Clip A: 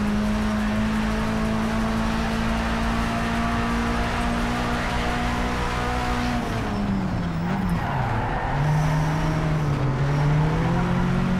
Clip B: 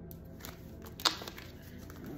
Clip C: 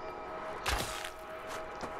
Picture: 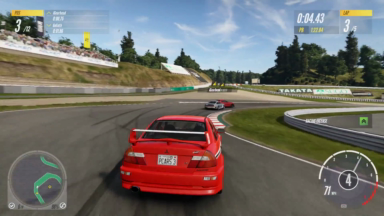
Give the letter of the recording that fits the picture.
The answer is A